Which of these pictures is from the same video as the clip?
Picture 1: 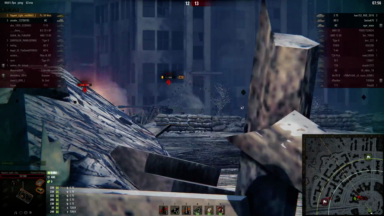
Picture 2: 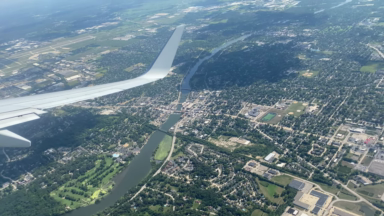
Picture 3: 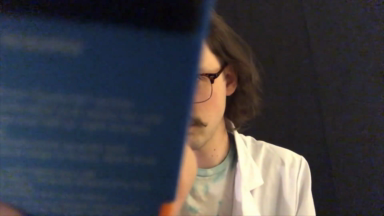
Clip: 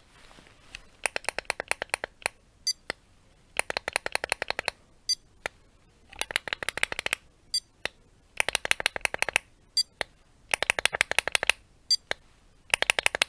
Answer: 3